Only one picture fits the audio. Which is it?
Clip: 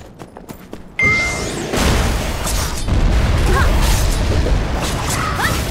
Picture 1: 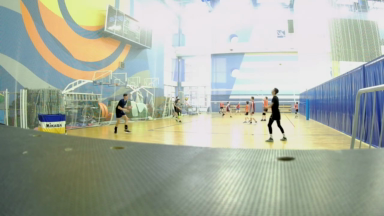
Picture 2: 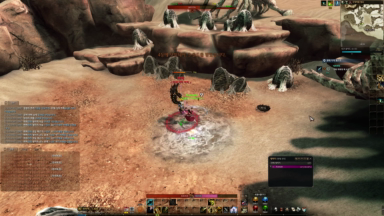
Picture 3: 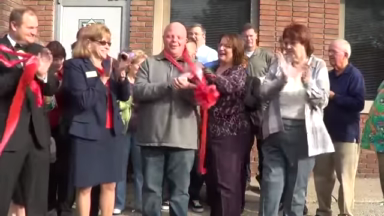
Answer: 2